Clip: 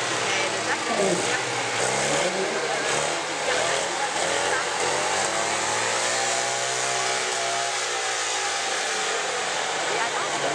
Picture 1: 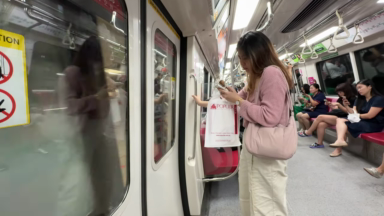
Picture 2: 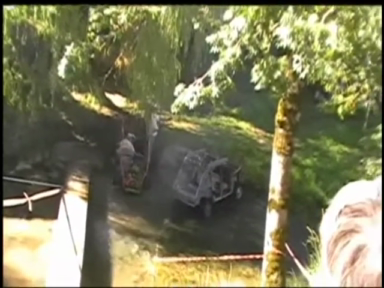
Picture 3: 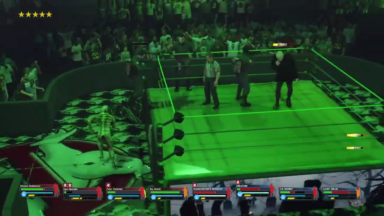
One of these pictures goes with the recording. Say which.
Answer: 2